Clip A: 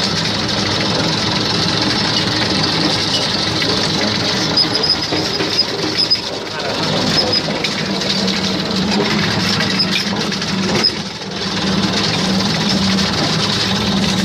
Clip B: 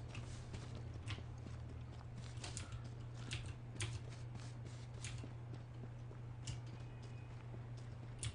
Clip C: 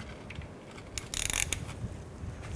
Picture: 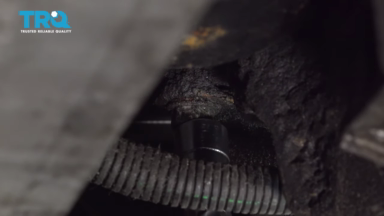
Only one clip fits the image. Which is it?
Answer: C